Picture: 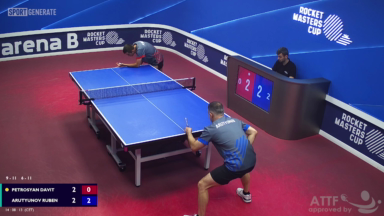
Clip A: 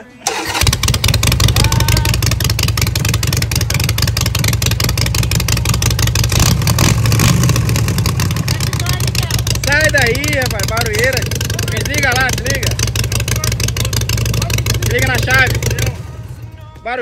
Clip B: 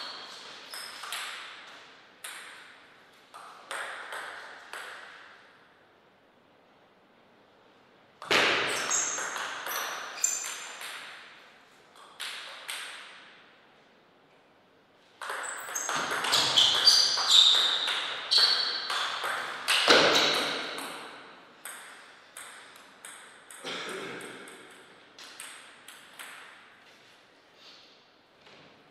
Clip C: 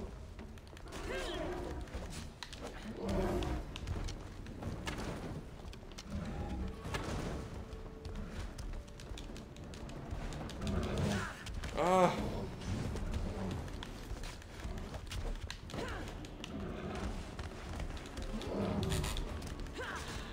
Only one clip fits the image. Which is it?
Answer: B